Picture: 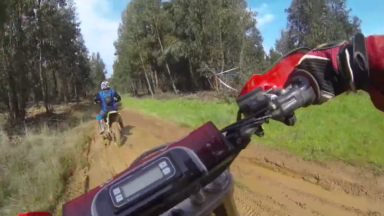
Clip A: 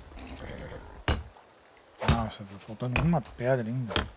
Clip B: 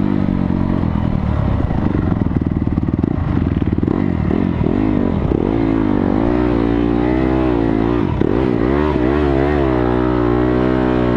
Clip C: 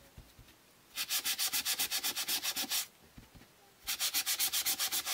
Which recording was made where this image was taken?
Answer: B